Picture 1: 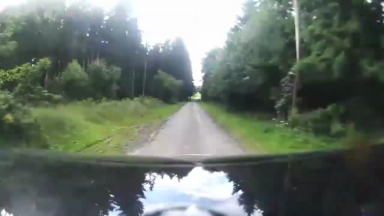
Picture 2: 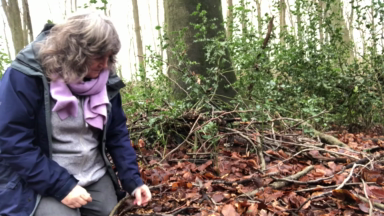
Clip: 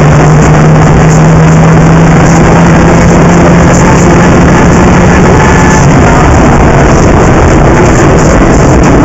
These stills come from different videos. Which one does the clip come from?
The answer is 1